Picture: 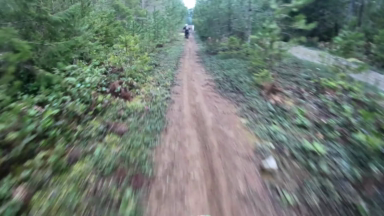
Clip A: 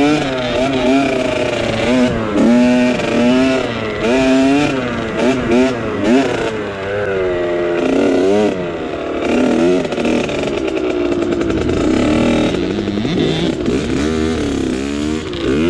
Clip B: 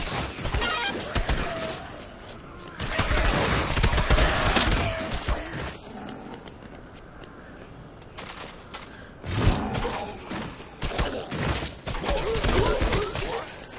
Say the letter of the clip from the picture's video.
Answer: A